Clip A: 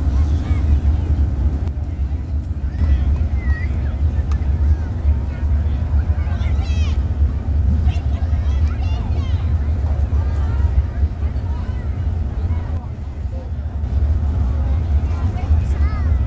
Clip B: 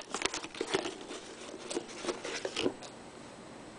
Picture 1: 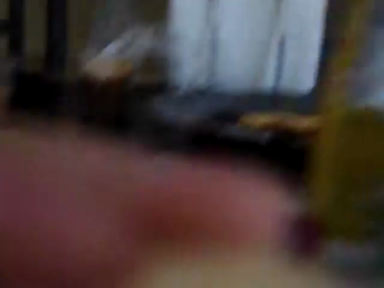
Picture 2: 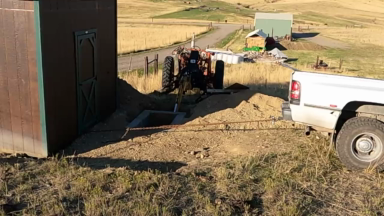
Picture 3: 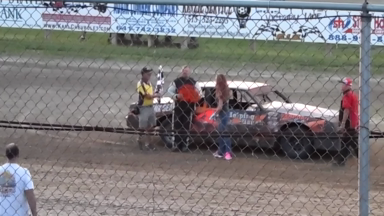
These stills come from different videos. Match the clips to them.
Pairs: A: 3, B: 1